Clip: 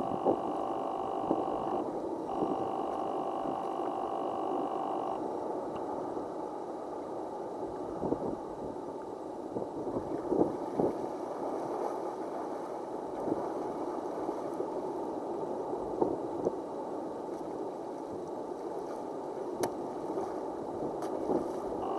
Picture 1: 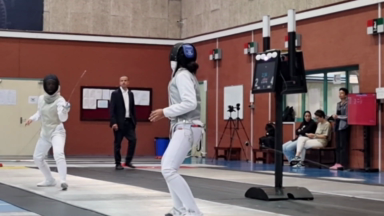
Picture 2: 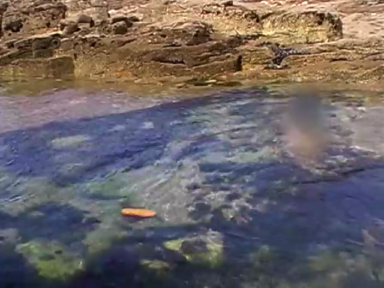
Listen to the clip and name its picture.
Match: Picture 2